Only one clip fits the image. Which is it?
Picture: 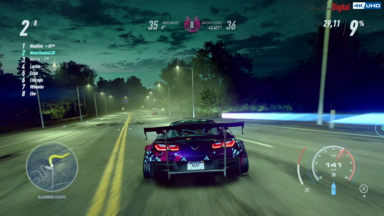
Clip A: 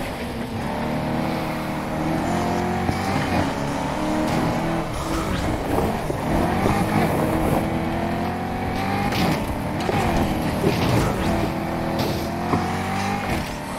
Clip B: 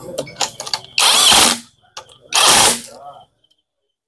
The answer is A